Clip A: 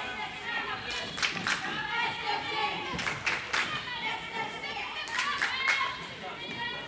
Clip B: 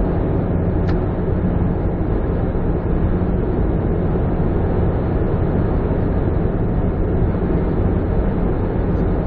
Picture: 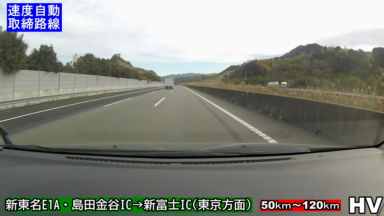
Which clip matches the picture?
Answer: B